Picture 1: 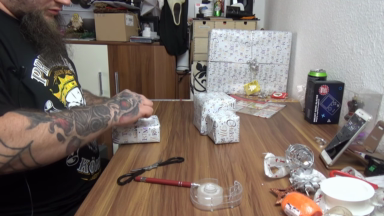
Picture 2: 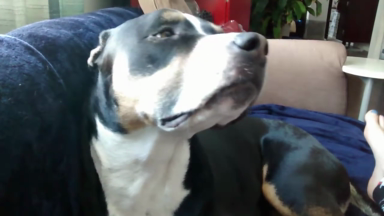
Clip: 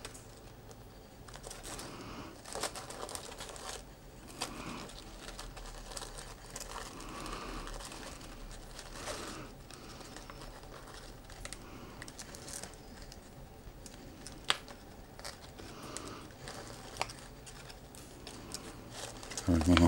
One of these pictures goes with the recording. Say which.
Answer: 1